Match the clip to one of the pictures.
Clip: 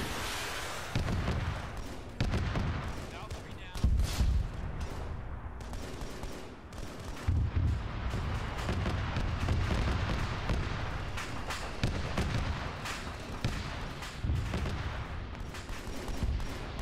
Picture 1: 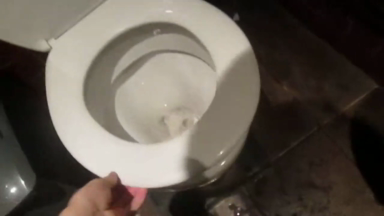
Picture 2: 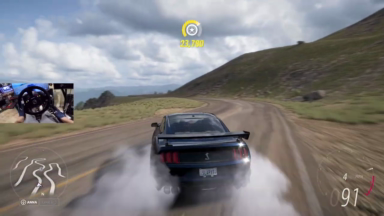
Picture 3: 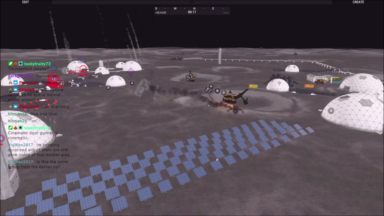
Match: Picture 3